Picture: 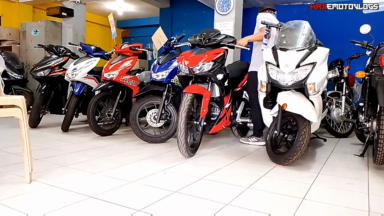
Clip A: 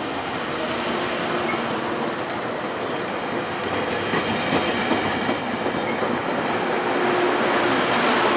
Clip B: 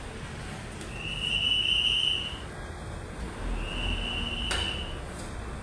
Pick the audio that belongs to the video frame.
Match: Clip B